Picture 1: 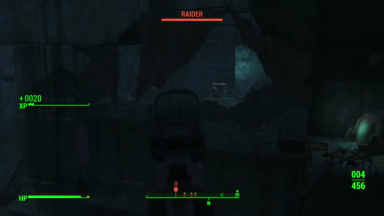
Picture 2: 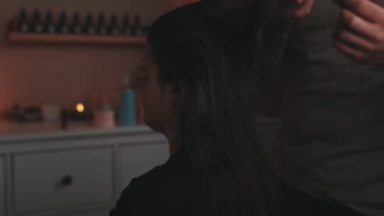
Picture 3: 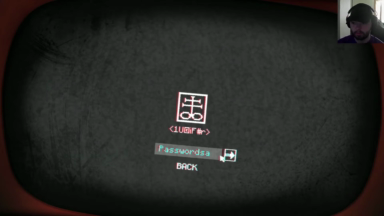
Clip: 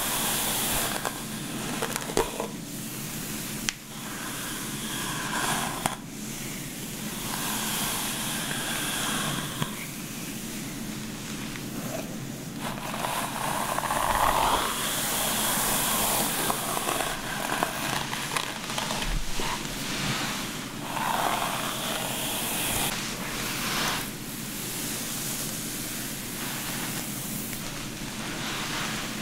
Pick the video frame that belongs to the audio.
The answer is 2